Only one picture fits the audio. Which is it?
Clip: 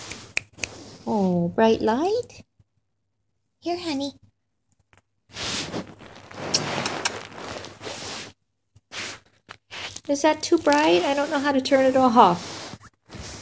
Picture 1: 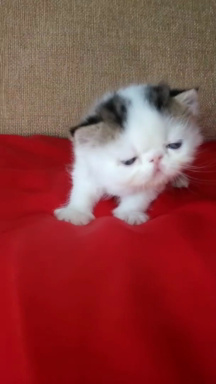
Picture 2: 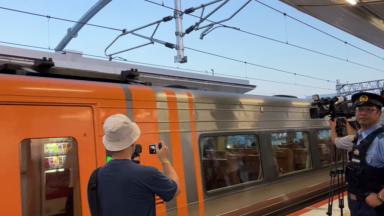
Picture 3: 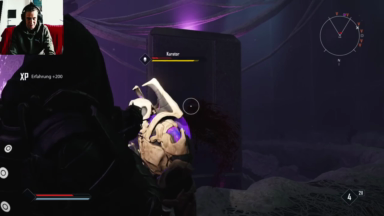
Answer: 1